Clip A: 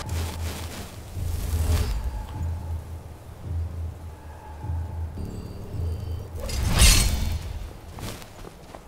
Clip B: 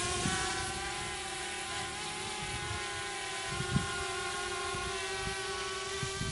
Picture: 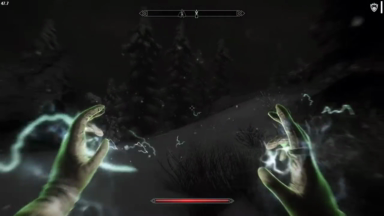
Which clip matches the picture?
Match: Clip A